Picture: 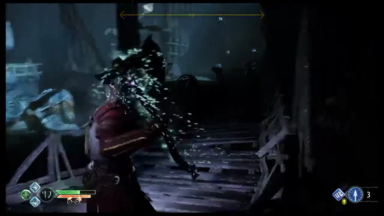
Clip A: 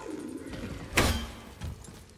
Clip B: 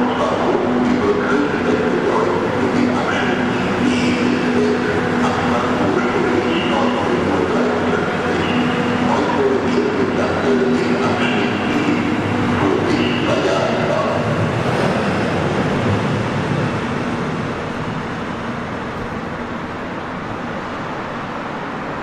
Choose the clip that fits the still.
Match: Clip A